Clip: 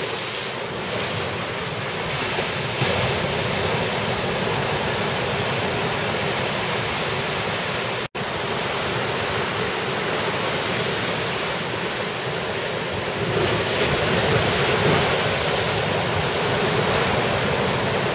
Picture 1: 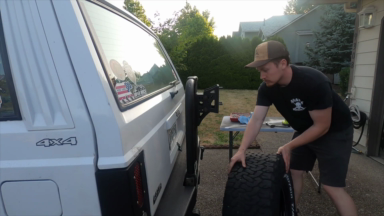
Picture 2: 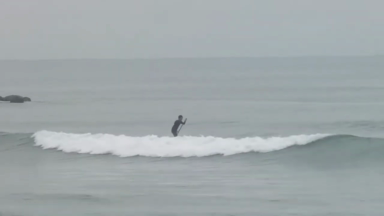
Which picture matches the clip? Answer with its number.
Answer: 2